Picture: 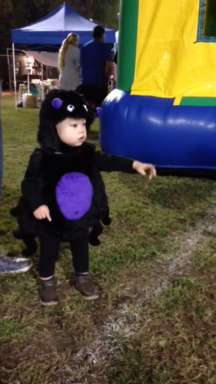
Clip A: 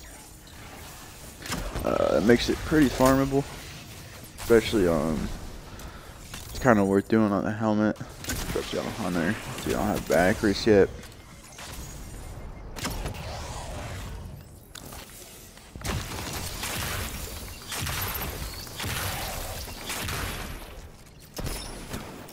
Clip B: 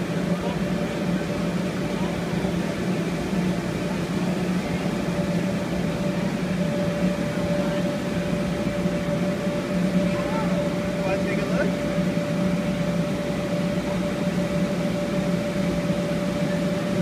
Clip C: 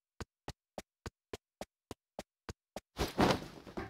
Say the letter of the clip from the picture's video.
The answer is B